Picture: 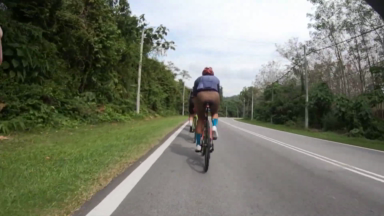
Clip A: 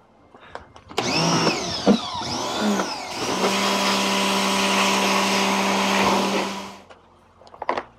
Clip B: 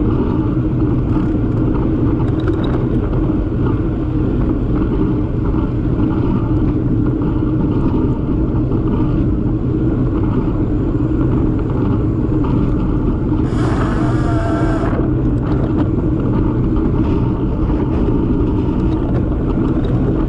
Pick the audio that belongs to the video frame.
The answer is B